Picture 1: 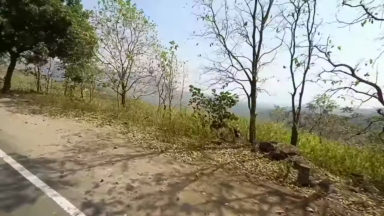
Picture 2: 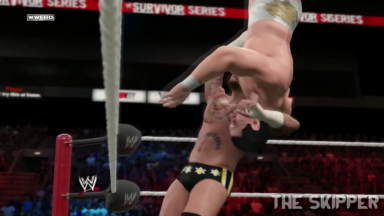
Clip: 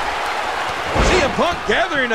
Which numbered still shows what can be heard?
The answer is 2